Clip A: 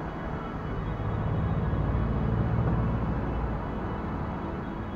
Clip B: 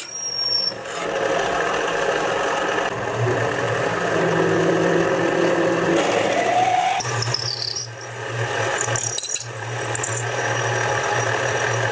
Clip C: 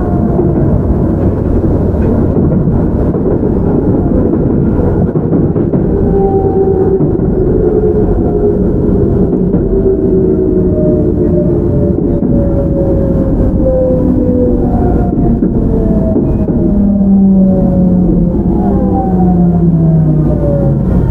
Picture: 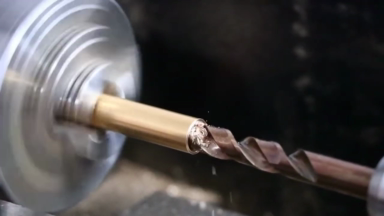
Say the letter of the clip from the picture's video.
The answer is B